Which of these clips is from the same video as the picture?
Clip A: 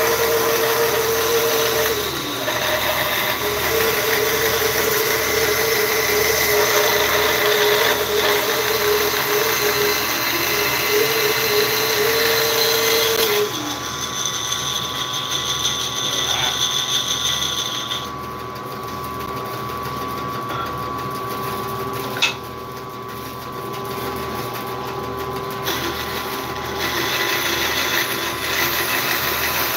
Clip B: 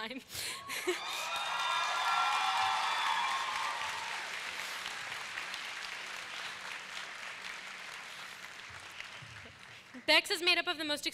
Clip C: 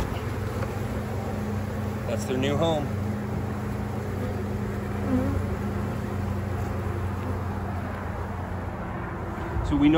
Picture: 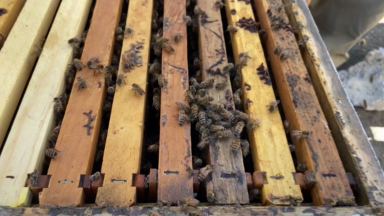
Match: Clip C